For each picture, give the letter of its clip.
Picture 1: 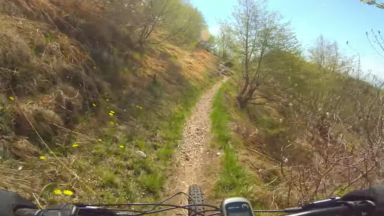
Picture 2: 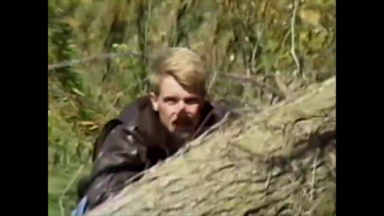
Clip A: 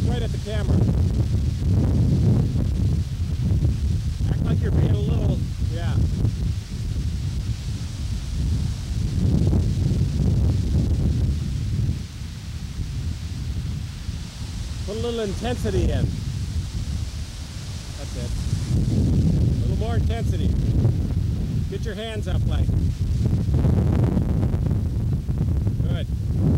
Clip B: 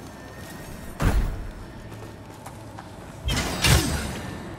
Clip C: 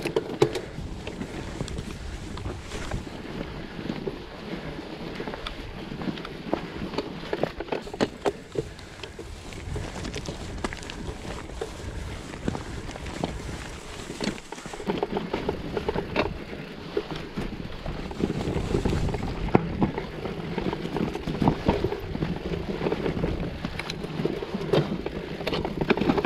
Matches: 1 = C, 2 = A